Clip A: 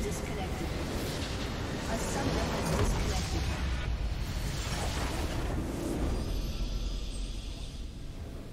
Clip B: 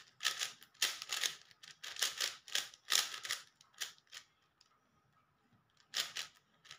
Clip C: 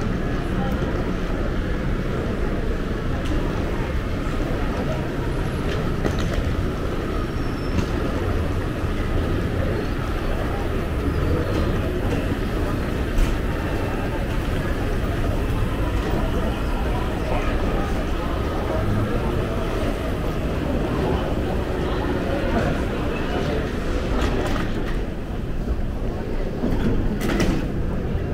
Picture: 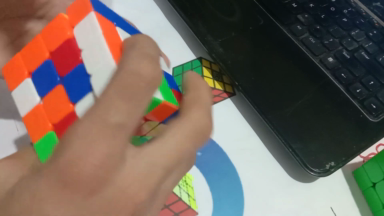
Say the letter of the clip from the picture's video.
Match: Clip B